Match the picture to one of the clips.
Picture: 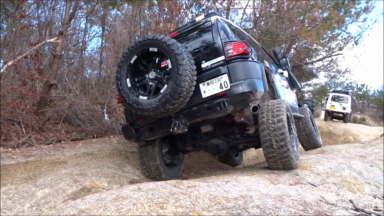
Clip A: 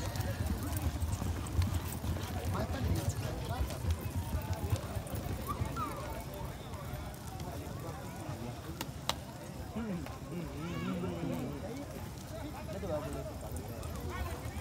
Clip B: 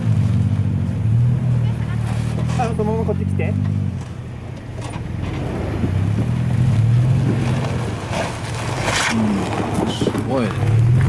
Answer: B